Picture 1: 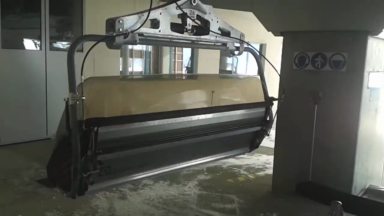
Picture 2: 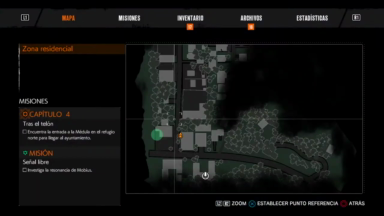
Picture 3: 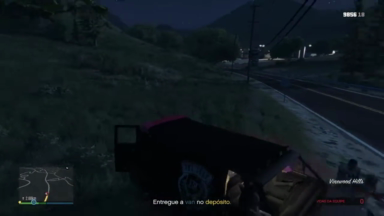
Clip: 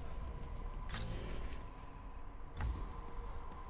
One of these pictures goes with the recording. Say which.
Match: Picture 2